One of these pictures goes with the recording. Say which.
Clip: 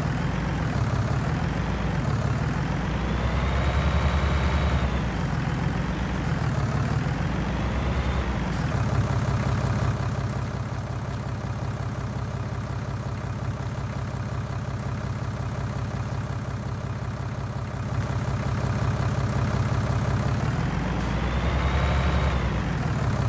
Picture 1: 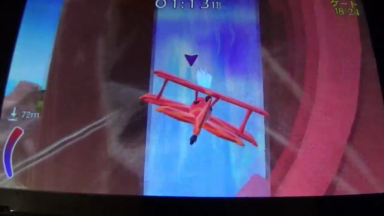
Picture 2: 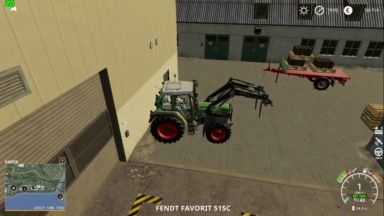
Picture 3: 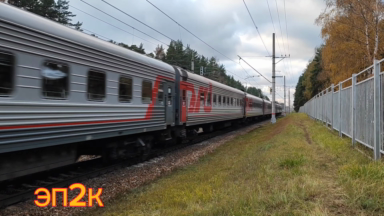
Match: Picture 2